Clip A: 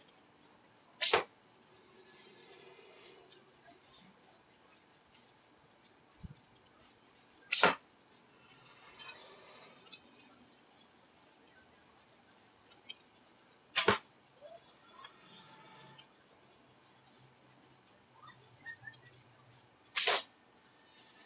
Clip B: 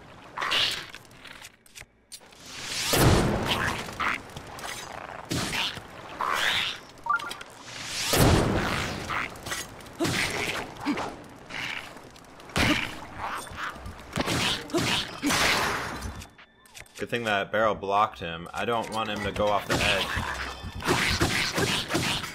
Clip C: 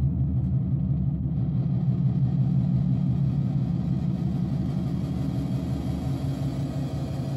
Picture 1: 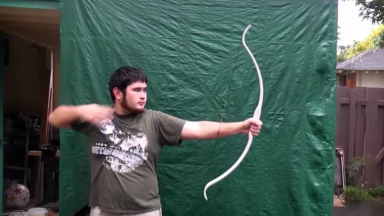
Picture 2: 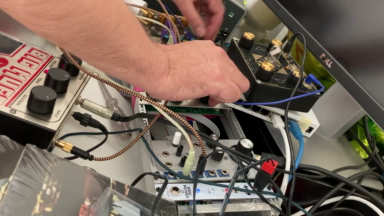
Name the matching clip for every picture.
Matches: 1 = A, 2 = C